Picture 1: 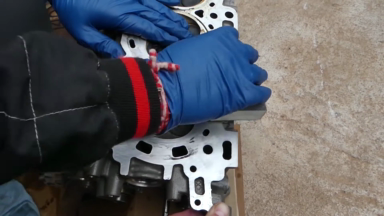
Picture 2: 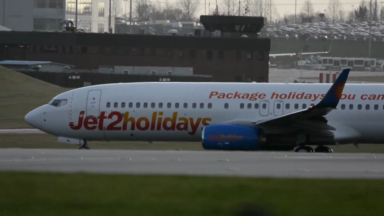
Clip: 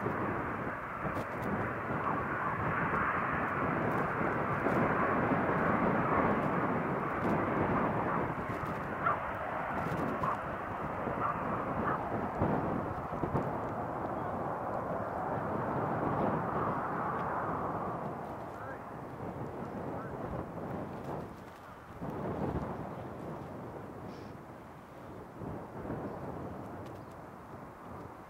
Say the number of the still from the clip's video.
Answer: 2